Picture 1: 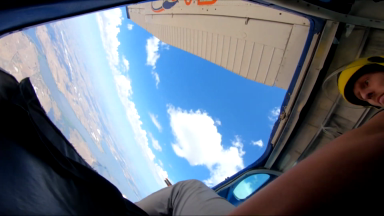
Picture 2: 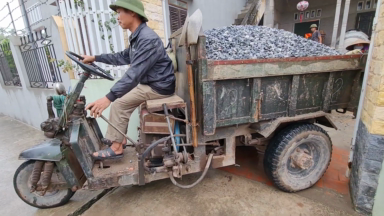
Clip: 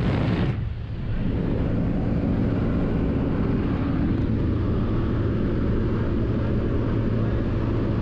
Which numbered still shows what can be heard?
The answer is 1